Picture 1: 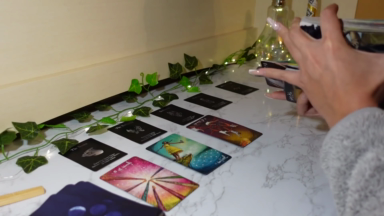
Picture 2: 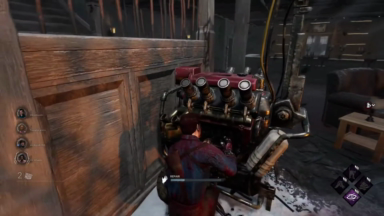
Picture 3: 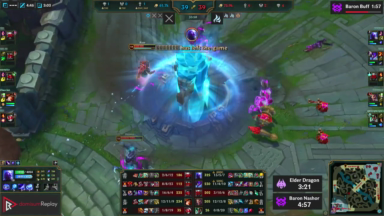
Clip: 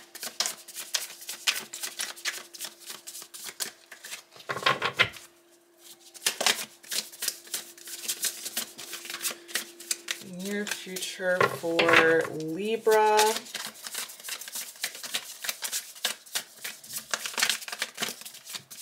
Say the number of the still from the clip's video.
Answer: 1